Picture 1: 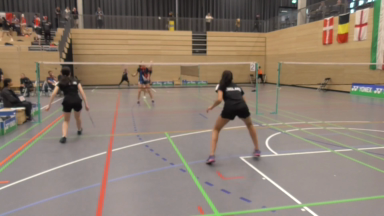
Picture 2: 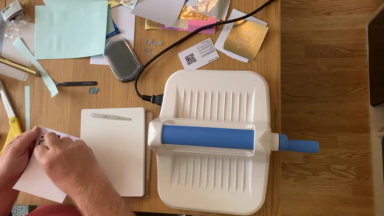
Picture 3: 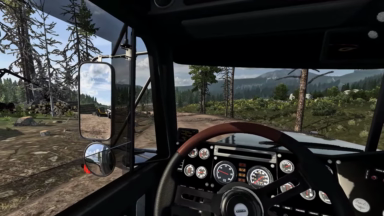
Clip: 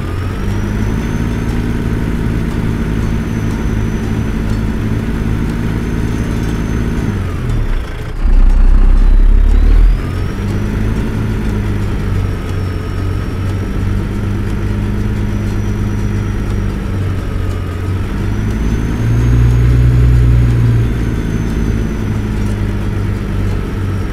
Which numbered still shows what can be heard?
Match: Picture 3